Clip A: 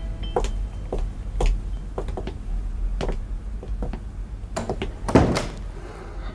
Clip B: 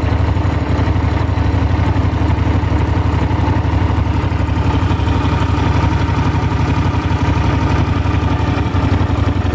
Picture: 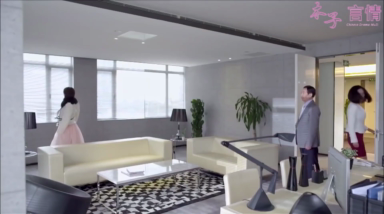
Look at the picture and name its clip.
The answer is A